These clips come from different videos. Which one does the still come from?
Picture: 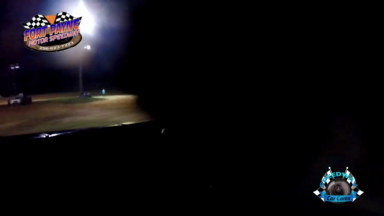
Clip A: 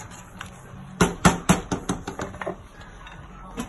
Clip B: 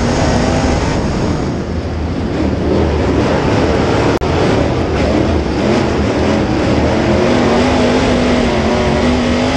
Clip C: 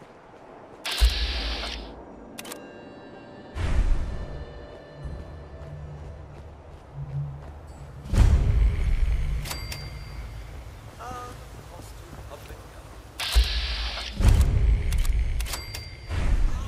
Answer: B